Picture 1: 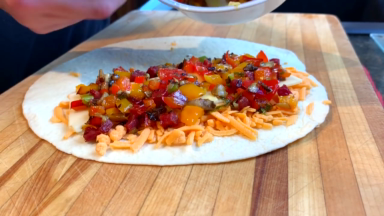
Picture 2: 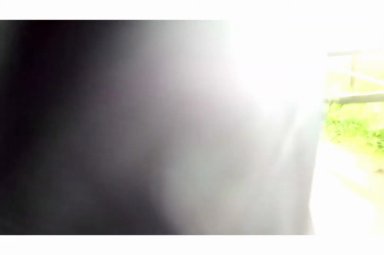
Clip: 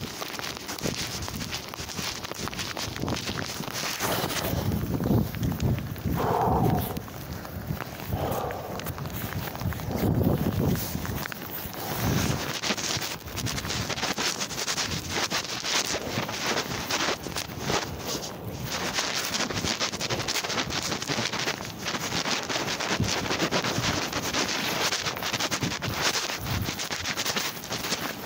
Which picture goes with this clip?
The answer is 2